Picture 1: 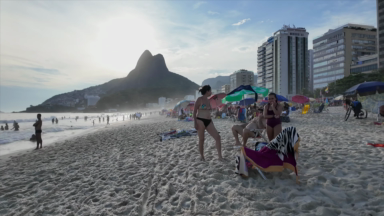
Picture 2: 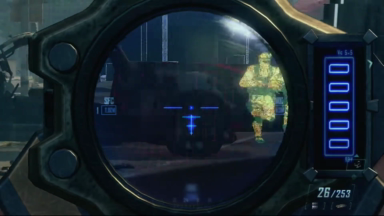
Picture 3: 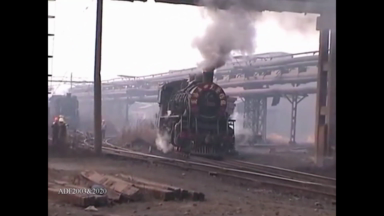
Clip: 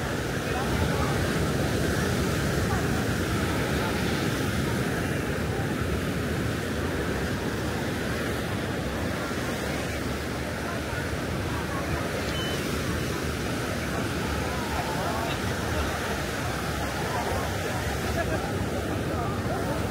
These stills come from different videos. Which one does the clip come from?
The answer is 1